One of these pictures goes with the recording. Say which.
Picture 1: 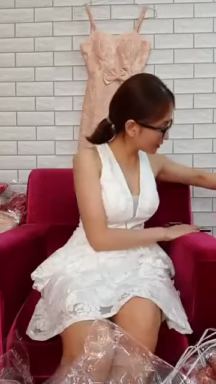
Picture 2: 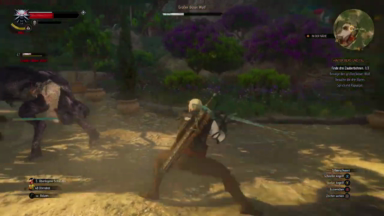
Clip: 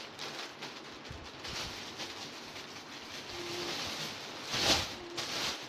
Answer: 1